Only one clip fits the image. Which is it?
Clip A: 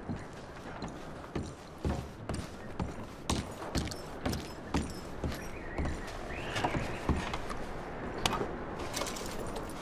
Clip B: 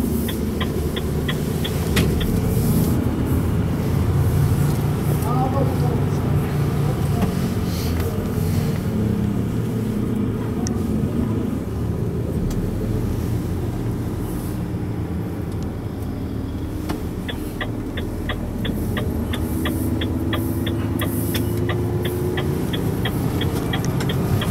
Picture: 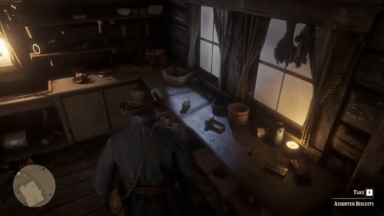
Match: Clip A